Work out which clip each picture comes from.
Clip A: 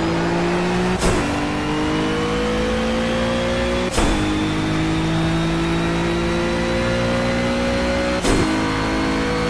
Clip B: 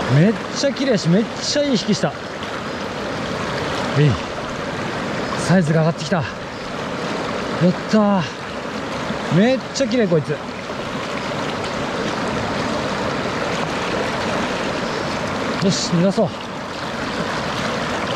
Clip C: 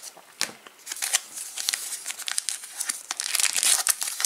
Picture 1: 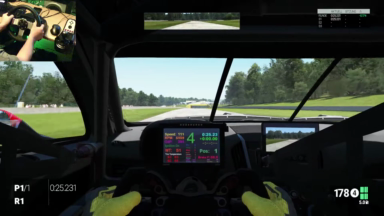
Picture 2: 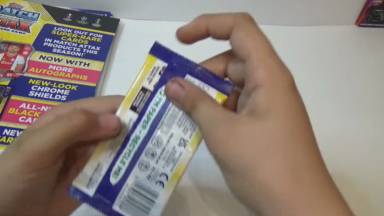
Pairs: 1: A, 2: C